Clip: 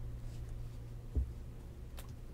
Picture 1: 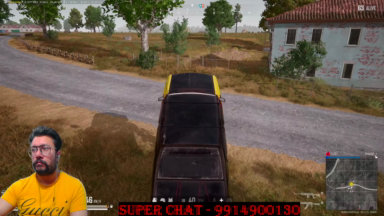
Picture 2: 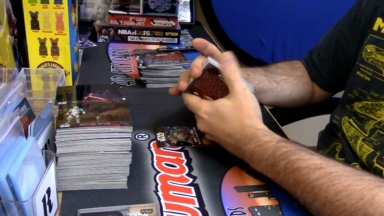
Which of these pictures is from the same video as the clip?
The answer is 2